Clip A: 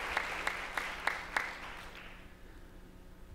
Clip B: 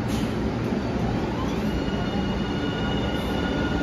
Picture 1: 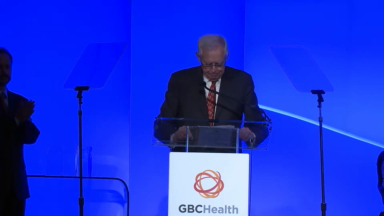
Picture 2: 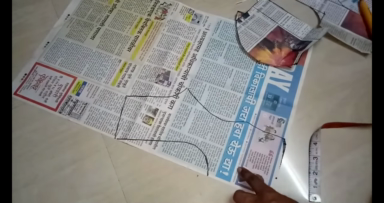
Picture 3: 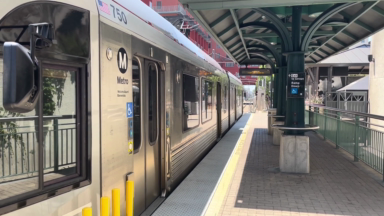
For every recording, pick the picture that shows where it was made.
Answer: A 1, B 3